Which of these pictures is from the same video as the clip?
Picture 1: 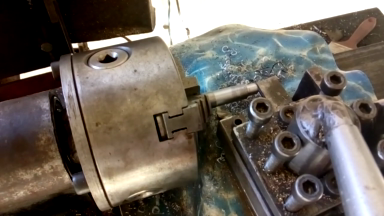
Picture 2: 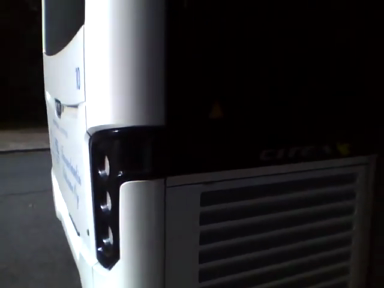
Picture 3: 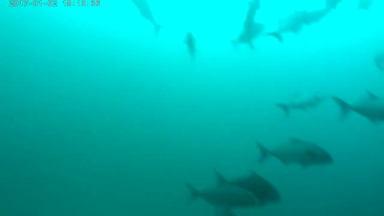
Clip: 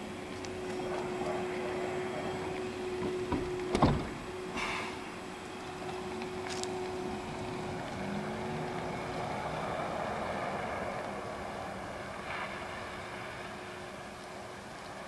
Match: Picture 2